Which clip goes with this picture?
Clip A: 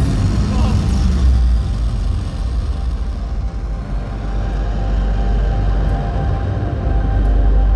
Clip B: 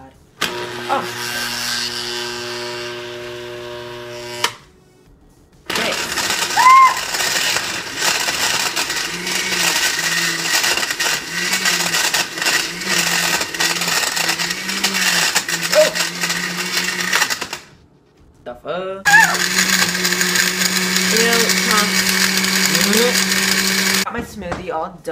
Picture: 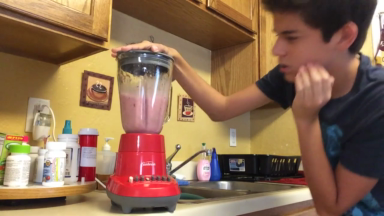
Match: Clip B